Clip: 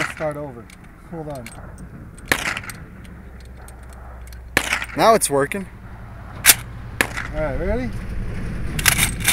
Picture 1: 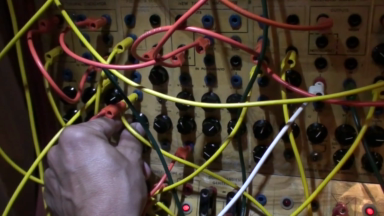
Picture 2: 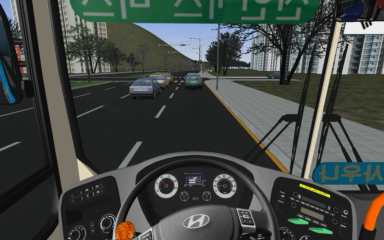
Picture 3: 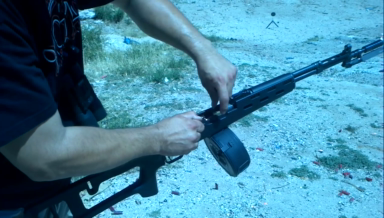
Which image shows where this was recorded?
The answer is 3